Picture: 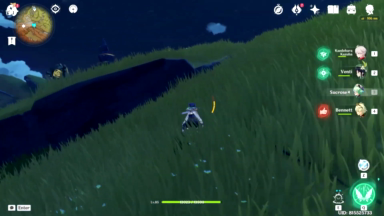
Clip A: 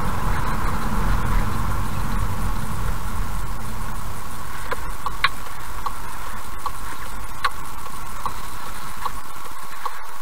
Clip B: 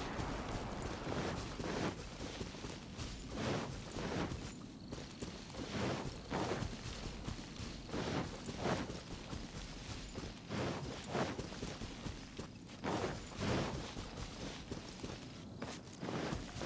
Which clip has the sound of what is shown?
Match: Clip B